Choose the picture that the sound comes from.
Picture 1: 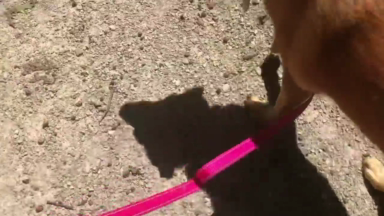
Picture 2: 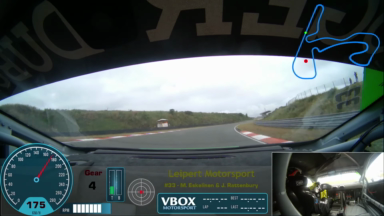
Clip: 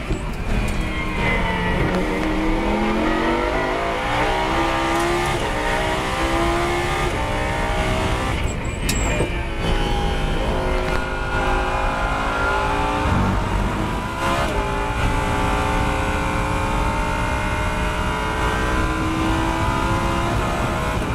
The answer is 2